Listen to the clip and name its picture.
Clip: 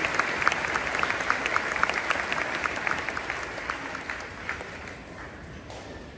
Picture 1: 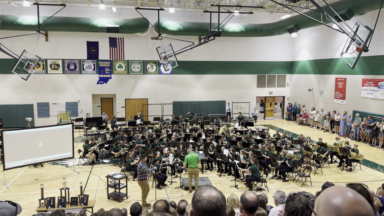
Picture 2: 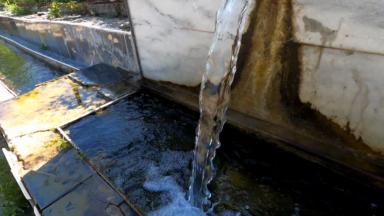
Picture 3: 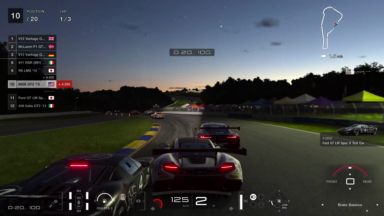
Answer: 1